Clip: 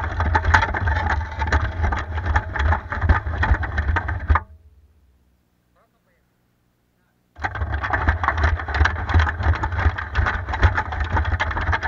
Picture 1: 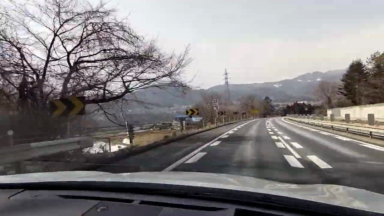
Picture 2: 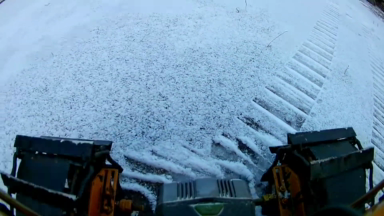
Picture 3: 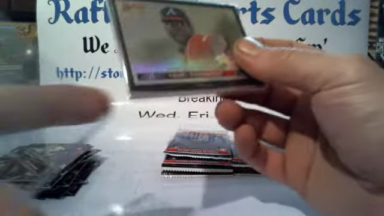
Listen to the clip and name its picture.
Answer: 2